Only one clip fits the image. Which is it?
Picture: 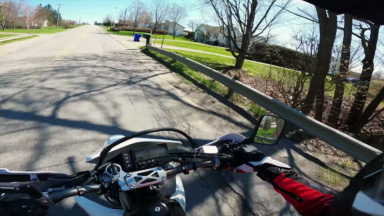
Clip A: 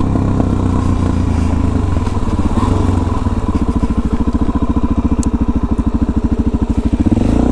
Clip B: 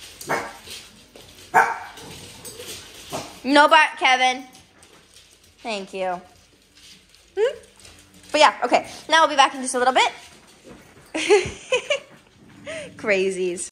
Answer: A